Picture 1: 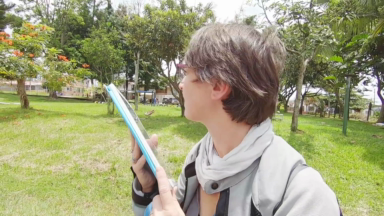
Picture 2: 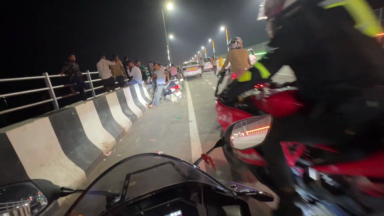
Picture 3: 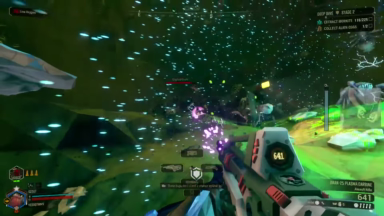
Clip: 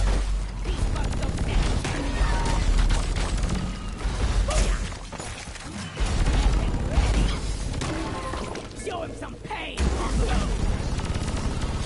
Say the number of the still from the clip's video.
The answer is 3